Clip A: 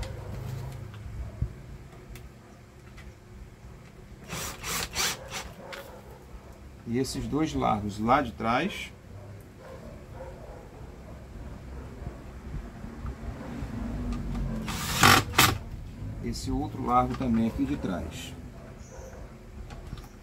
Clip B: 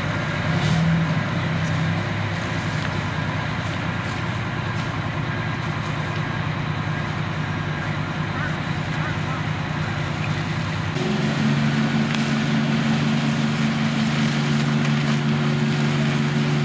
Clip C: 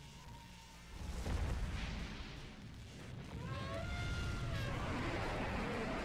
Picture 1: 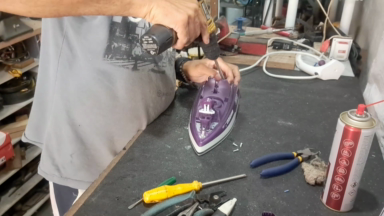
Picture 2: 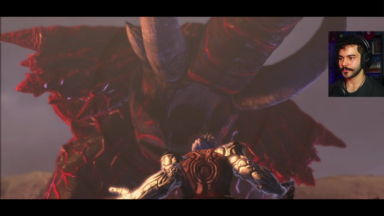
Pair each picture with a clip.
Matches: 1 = A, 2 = C